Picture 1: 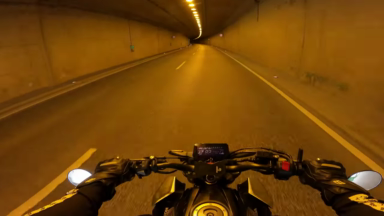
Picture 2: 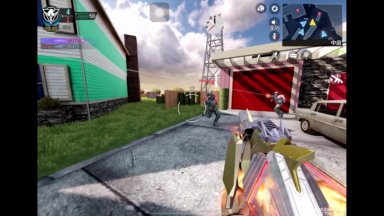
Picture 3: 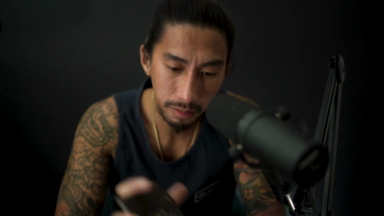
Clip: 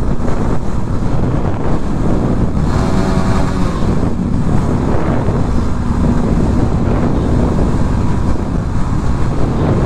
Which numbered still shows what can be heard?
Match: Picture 1